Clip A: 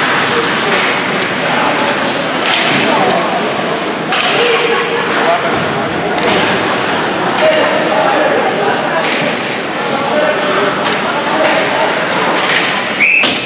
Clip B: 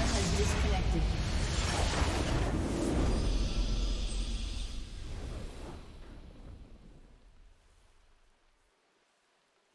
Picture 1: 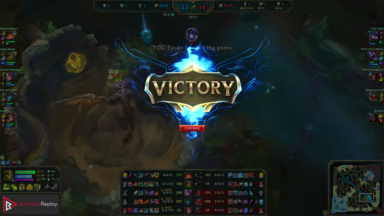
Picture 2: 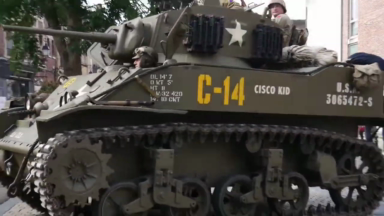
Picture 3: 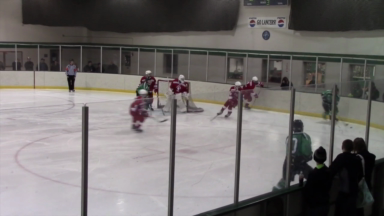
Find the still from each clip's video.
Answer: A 3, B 1